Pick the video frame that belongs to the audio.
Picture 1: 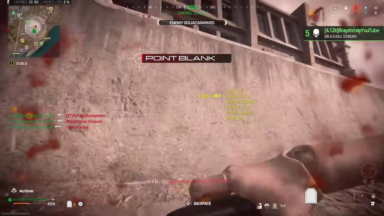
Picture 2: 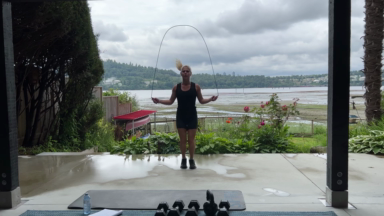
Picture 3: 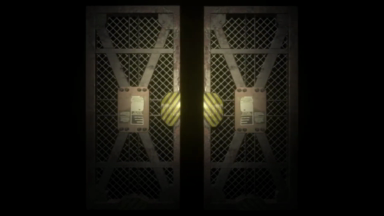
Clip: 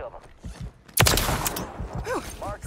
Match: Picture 1